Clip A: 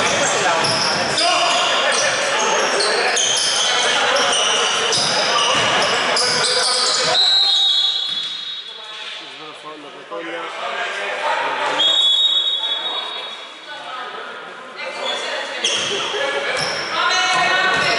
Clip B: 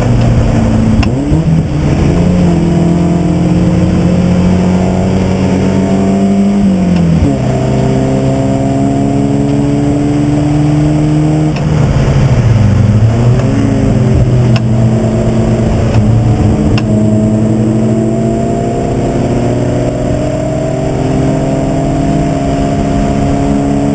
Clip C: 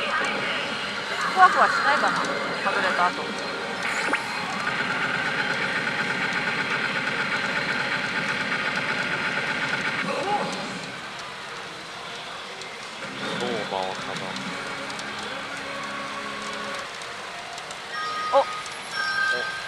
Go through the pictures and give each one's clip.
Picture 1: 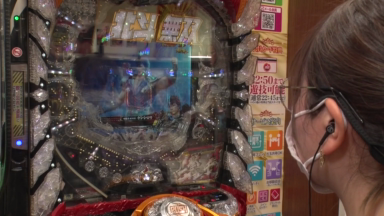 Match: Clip C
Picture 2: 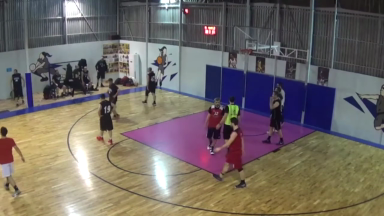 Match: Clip A